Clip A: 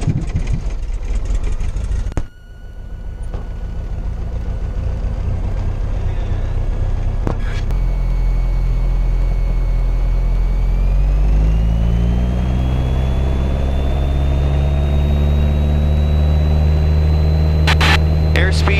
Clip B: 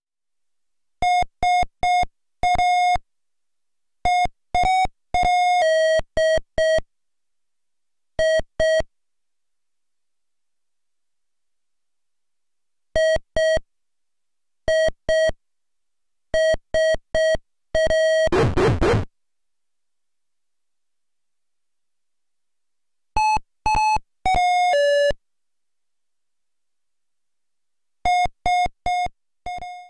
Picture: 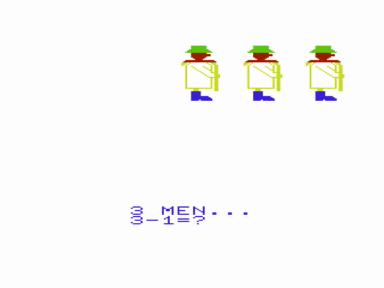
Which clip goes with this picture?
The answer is B